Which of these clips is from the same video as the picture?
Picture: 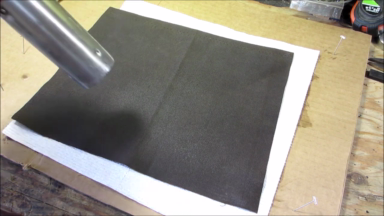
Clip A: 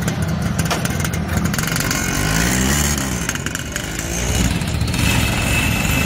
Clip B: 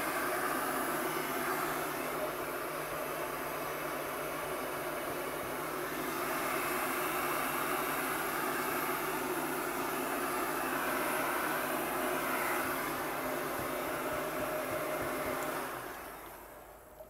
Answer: B